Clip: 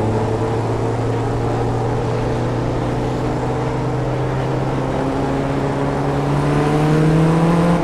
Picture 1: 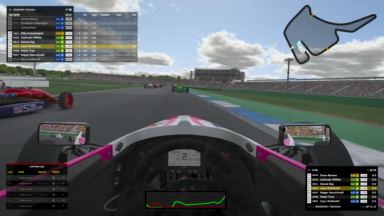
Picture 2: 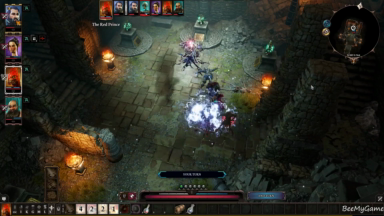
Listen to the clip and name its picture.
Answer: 1